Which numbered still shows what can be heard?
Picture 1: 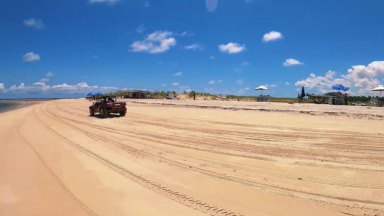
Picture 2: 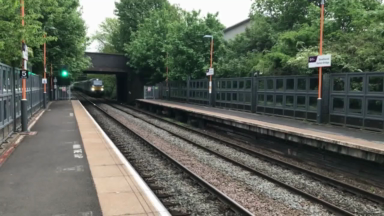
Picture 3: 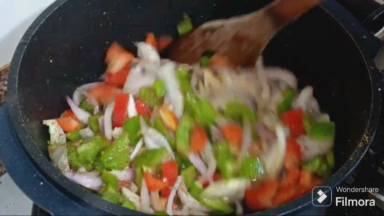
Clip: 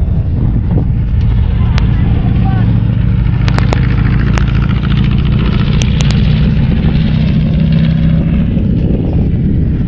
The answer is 1